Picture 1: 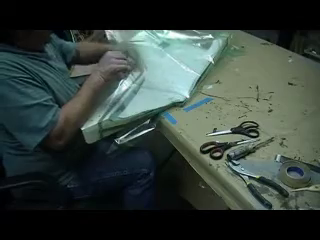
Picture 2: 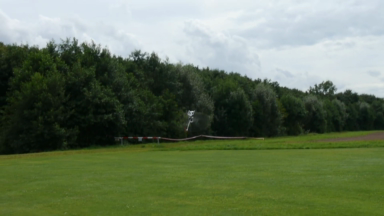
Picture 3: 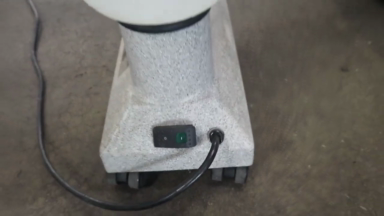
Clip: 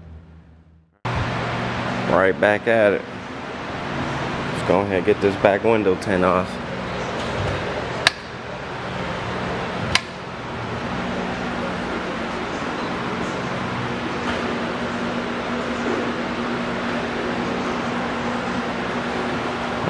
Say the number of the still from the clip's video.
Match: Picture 3